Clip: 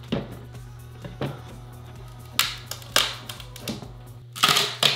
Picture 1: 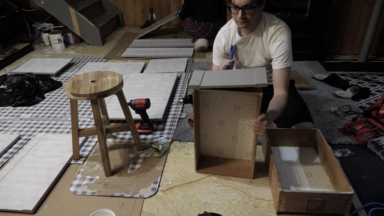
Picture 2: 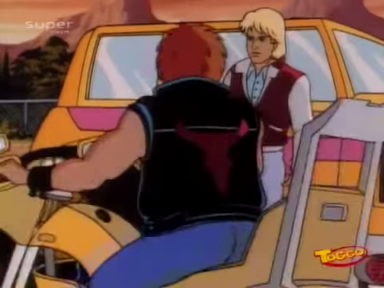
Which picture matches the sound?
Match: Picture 1